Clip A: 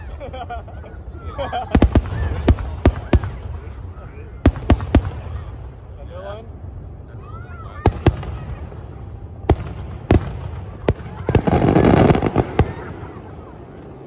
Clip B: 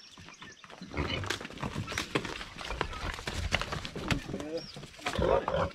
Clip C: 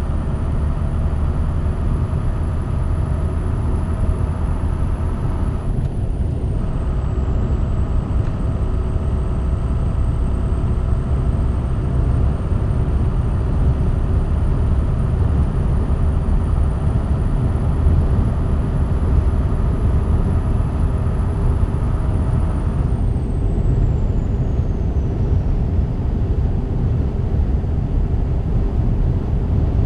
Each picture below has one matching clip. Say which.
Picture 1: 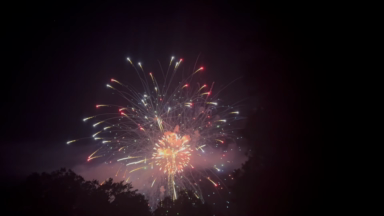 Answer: A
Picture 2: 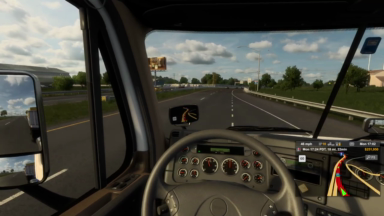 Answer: C